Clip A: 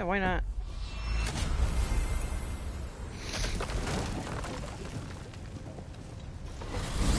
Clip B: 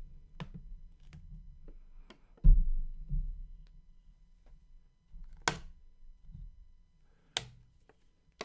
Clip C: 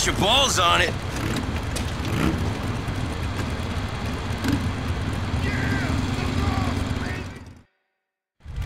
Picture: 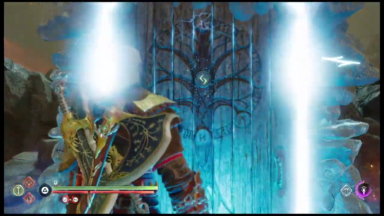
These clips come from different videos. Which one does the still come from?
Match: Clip A